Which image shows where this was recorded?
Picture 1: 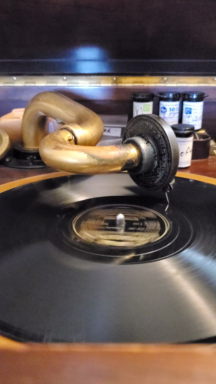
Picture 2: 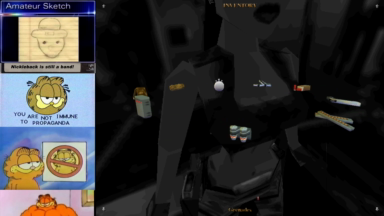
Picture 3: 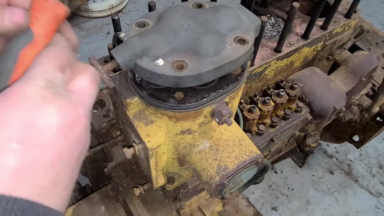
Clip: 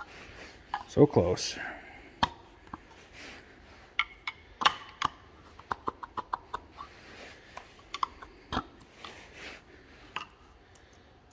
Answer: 3